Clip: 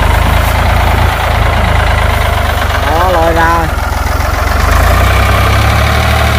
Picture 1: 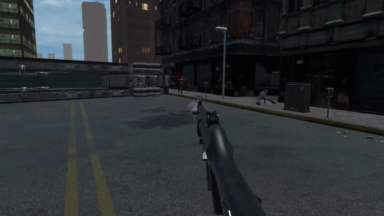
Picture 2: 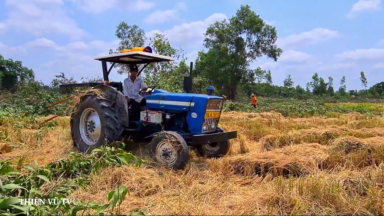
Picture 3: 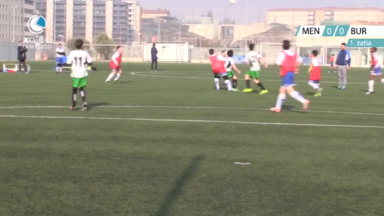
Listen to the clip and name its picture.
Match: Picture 2